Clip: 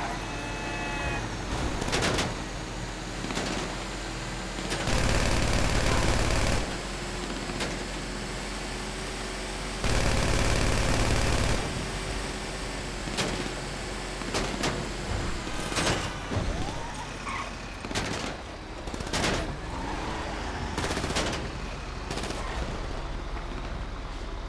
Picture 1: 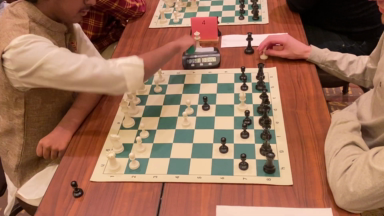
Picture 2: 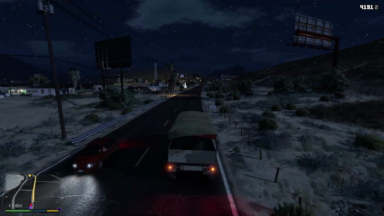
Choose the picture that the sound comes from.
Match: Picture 2